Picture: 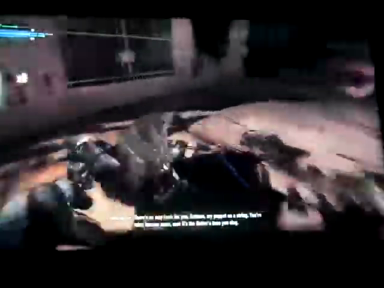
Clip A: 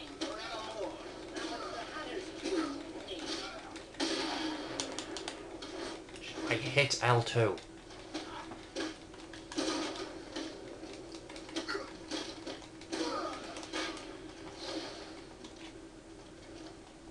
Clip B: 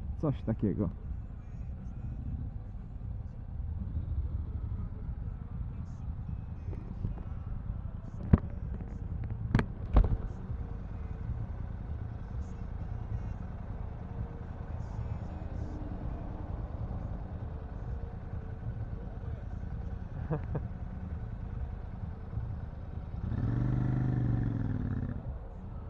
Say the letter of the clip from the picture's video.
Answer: A